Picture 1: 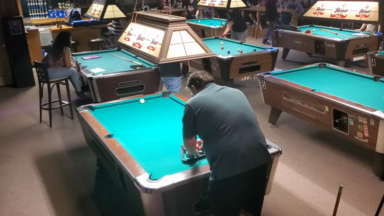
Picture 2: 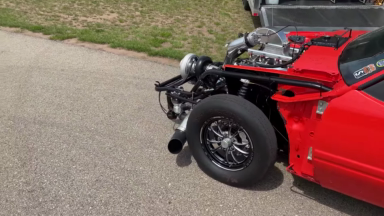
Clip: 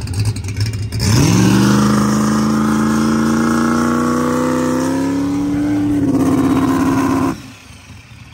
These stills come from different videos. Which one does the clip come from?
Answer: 2